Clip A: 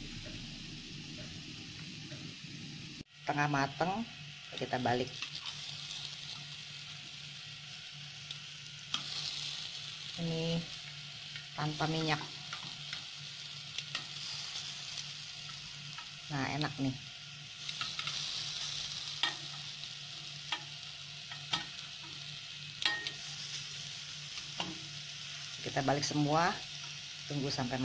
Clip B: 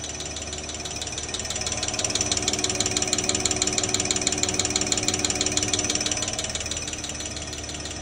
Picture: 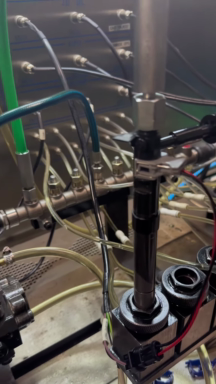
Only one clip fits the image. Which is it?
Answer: B